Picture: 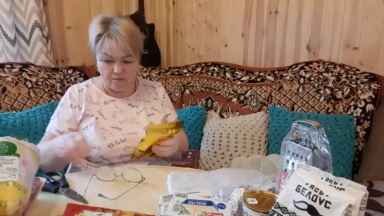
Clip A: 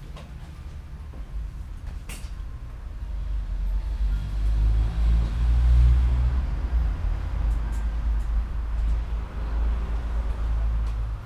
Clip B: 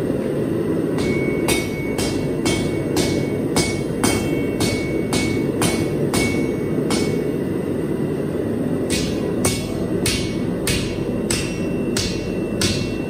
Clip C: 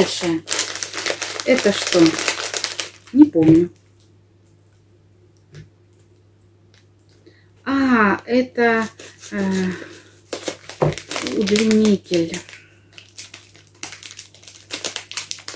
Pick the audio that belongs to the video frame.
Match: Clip C